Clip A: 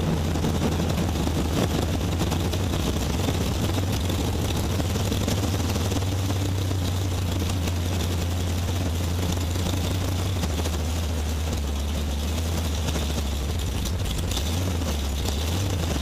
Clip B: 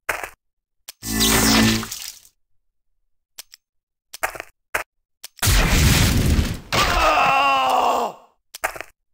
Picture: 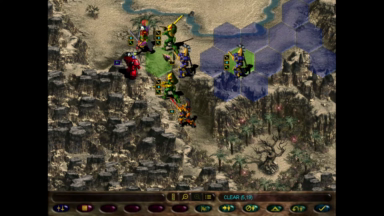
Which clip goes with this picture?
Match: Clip B